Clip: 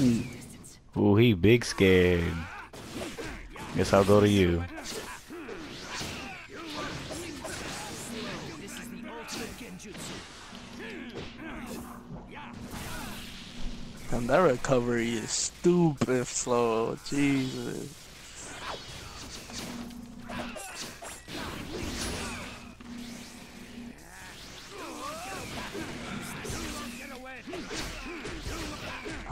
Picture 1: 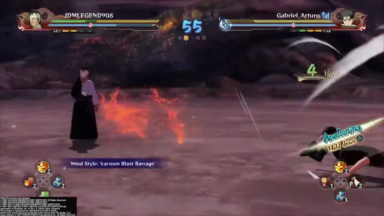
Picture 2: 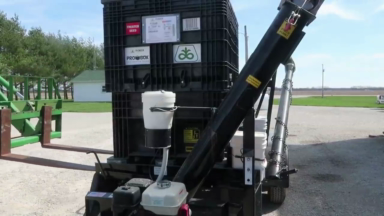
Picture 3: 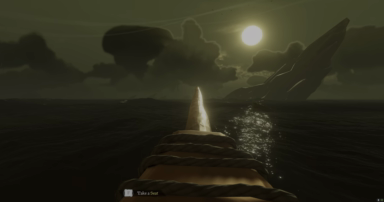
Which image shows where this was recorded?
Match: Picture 1